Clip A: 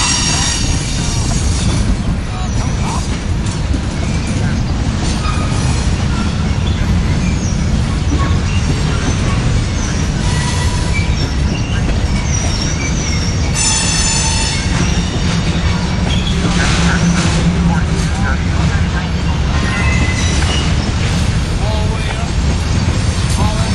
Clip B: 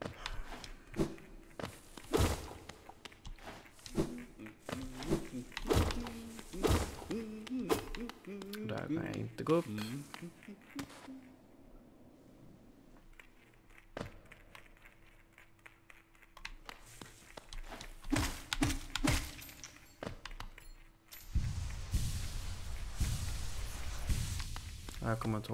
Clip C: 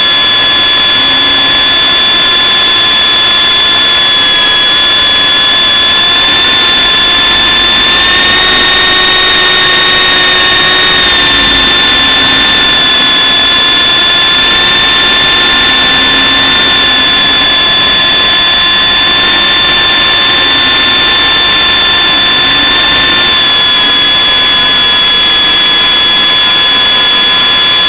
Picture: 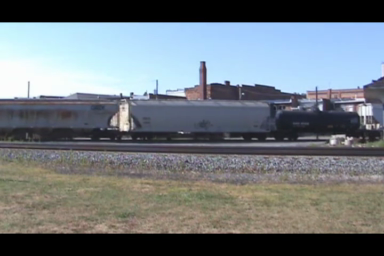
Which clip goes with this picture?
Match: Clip A